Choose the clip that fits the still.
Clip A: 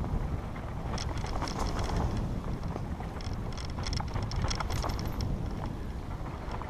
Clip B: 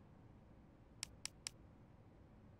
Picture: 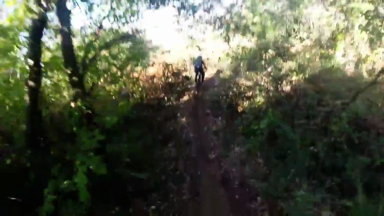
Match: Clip A